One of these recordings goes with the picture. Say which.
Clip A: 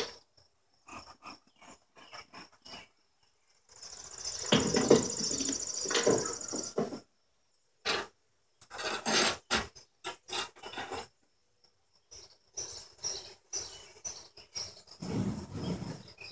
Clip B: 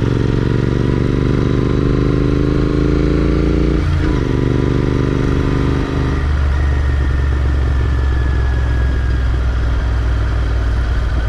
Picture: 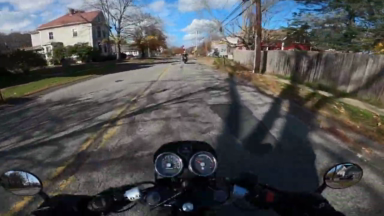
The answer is B